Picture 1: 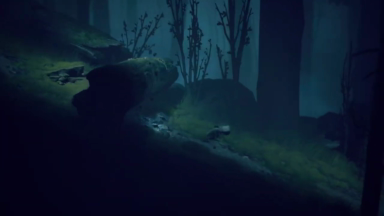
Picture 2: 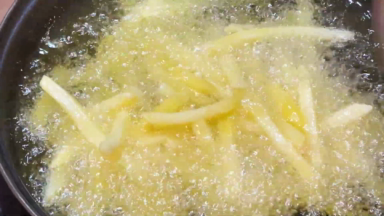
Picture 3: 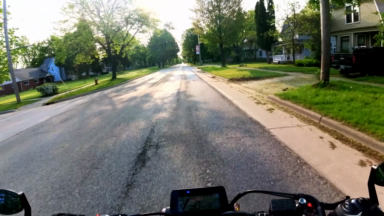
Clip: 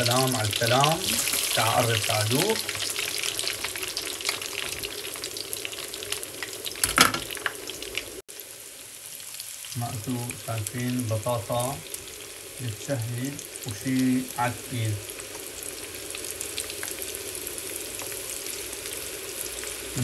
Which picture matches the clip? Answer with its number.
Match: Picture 2